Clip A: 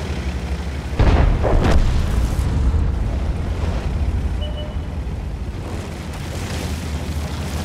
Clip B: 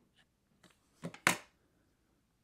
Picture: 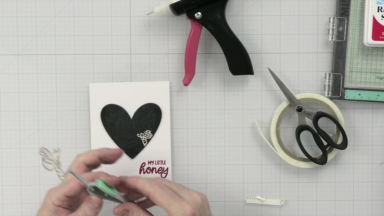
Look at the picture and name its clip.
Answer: B